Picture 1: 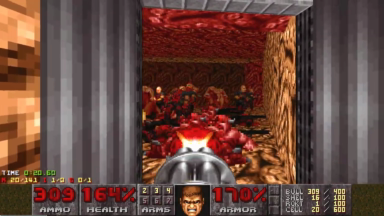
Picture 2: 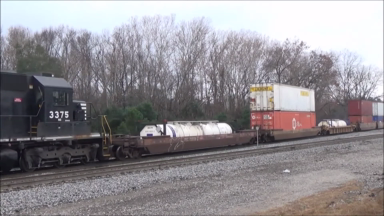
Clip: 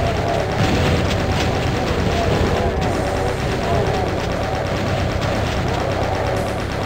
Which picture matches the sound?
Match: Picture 1